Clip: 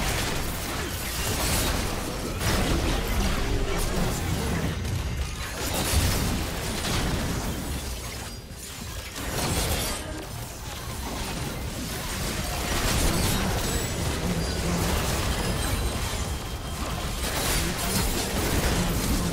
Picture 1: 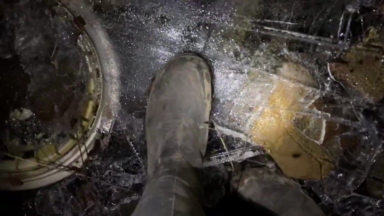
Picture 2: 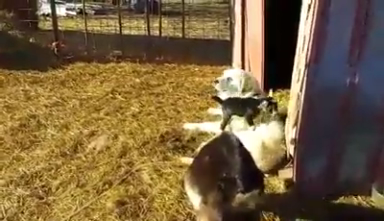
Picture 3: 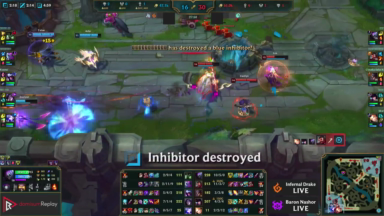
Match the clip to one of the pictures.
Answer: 3